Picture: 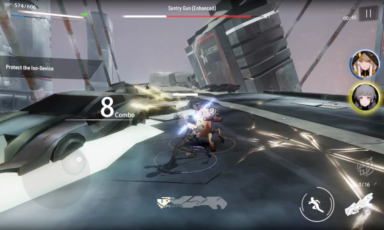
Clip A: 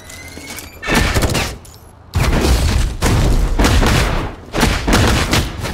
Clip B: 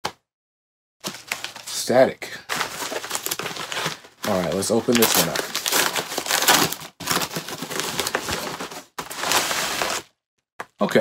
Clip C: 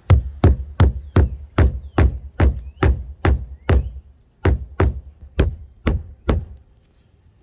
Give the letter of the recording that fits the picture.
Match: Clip A